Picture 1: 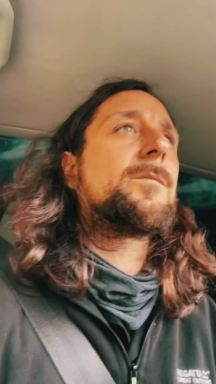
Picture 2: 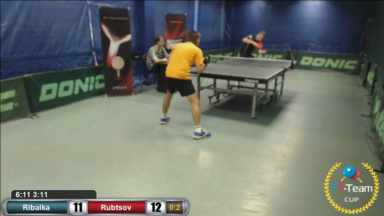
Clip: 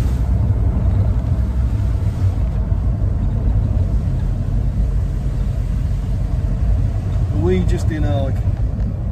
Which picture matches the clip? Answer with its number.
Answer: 1